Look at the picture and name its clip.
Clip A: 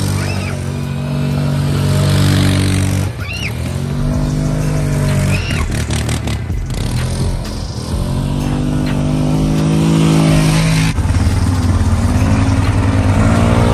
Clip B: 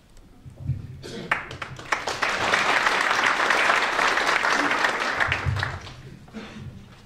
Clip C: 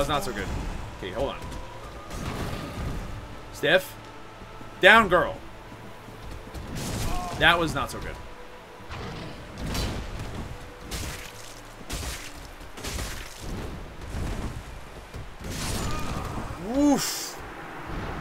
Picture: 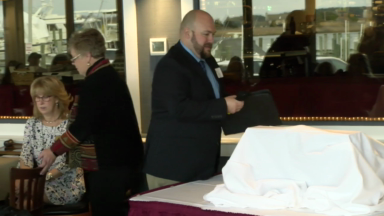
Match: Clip B